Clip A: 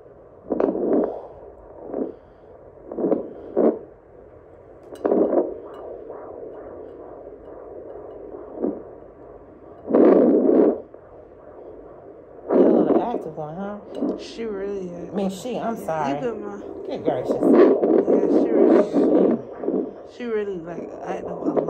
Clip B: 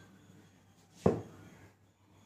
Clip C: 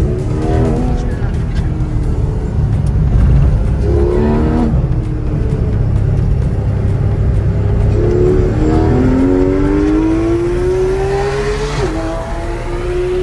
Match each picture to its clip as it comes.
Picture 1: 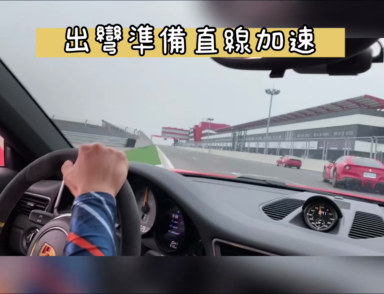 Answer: C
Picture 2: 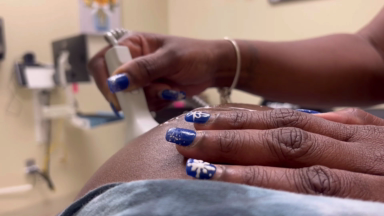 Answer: A